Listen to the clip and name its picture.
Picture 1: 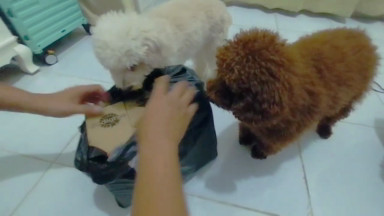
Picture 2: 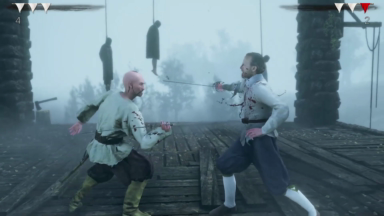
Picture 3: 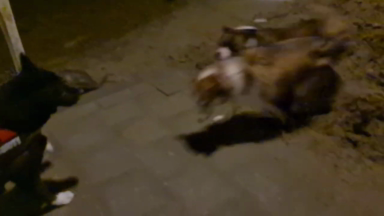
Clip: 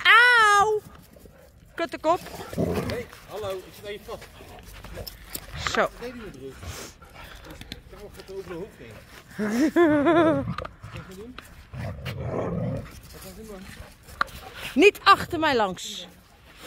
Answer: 3